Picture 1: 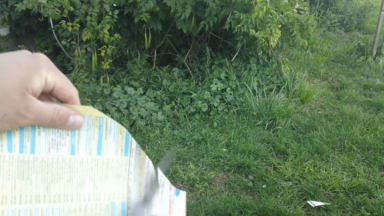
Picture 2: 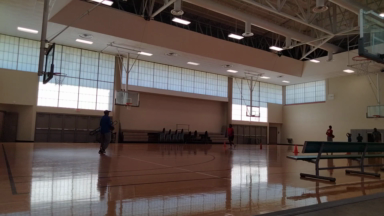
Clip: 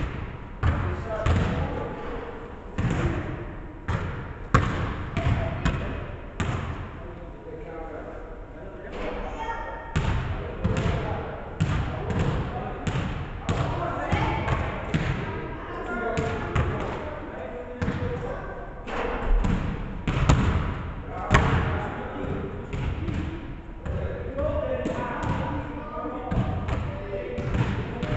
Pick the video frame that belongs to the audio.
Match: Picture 2